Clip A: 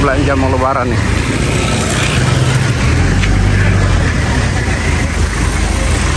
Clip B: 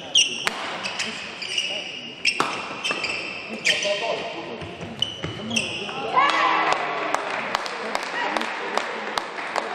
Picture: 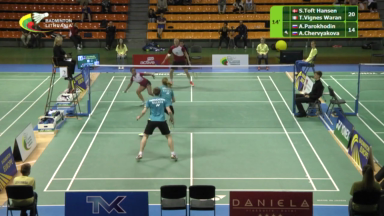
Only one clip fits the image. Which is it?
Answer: B